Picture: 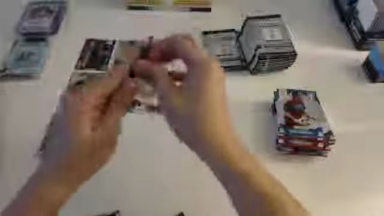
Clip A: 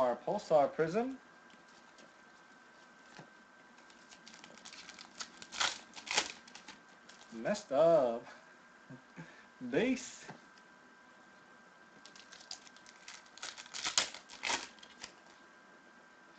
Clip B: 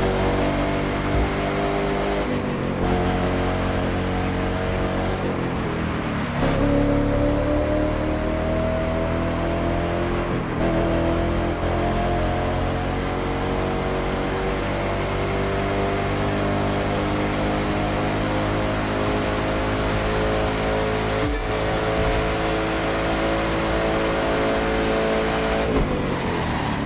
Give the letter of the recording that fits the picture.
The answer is A